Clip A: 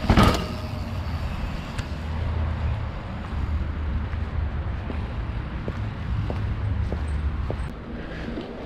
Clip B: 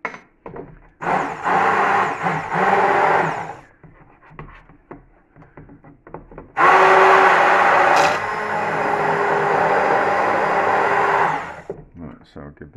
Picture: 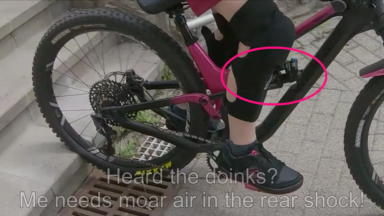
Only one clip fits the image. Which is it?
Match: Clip A